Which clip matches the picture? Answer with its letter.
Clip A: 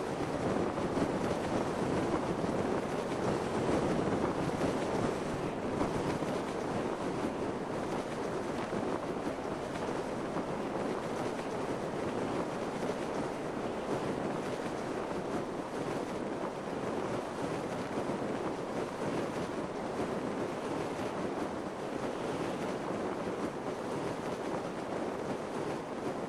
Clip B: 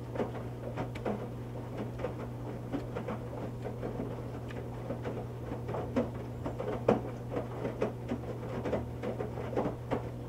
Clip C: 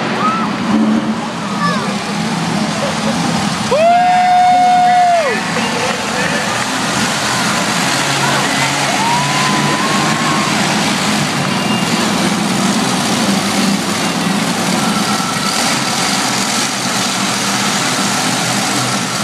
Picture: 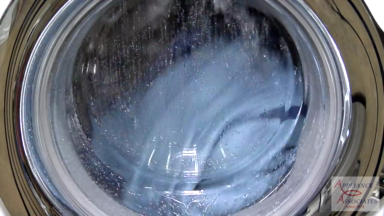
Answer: B